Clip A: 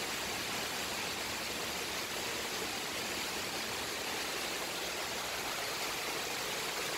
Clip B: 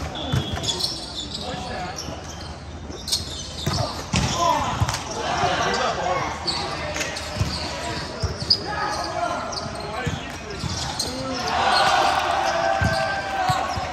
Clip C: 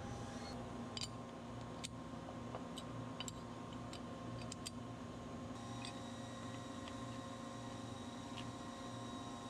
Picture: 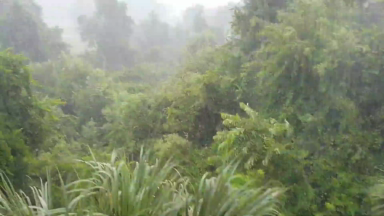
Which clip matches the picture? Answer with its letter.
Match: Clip A